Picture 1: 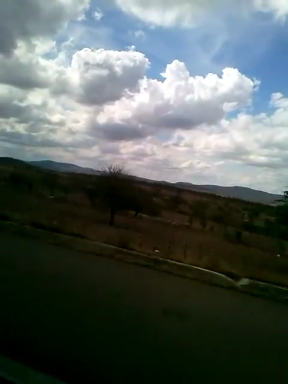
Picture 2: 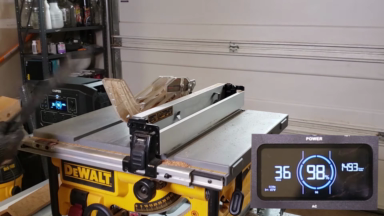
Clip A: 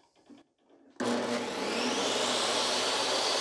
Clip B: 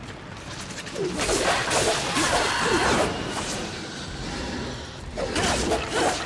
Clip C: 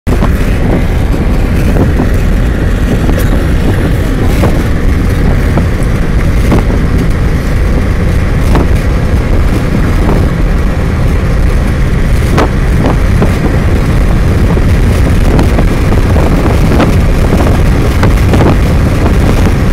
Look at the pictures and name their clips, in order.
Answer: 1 C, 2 A